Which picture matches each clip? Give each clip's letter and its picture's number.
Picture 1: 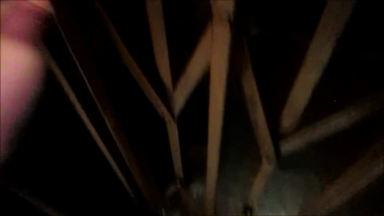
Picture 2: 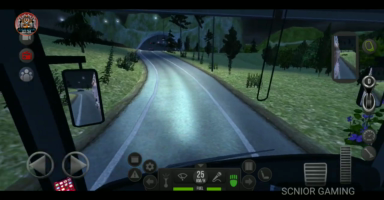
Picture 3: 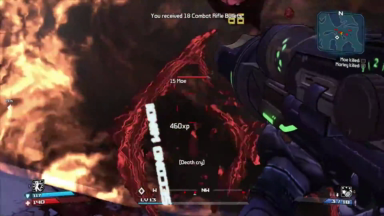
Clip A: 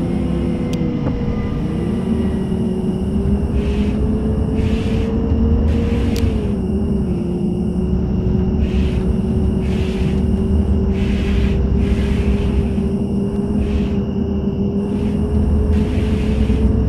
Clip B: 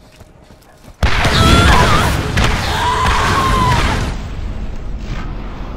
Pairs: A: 2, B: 3